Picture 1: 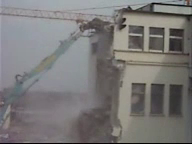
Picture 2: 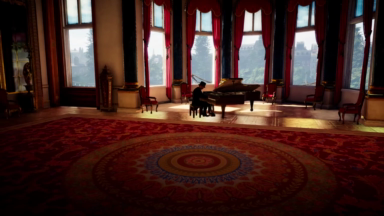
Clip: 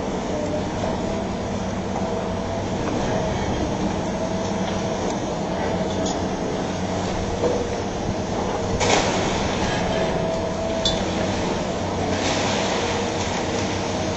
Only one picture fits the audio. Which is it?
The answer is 1